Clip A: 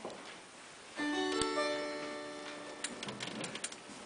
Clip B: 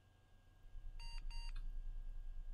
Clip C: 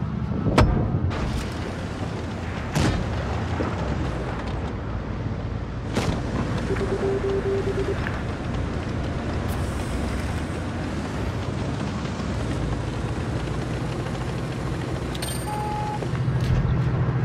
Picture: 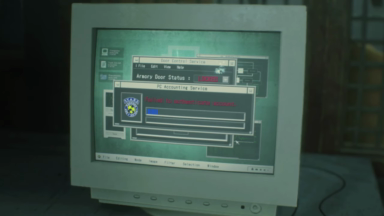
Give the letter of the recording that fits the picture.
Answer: B